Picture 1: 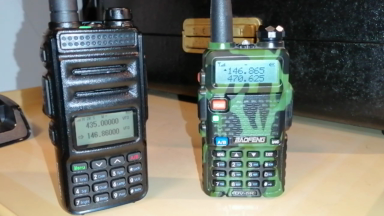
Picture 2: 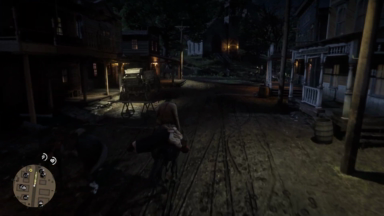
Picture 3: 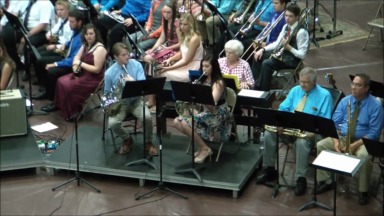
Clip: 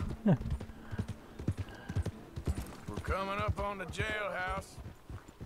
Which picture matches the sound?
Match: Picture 2